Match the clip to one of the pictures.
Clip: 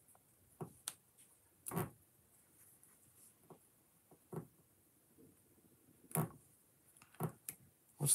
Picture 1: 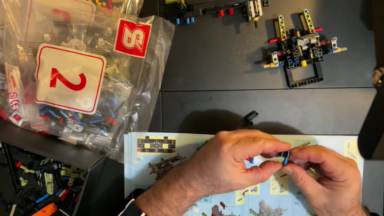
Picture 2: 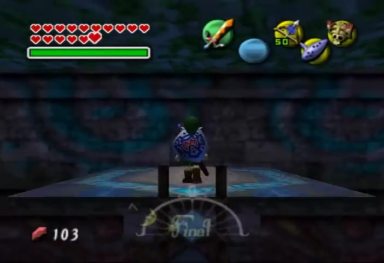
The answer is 1